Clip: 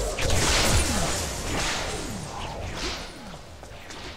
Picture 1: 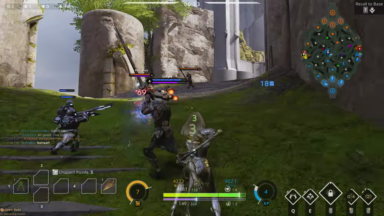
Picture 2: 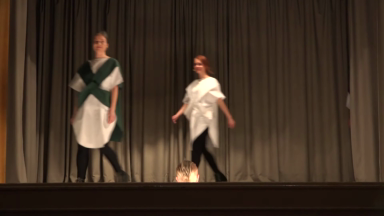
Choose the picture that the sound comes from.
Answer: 1